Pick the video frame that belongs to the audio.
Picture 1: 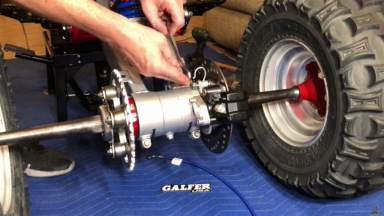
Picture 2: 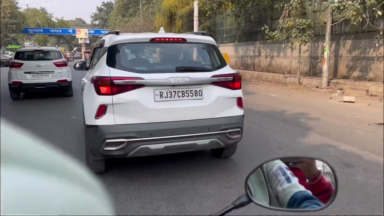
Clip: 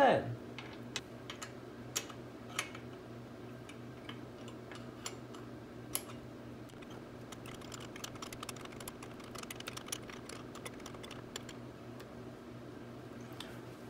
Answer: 1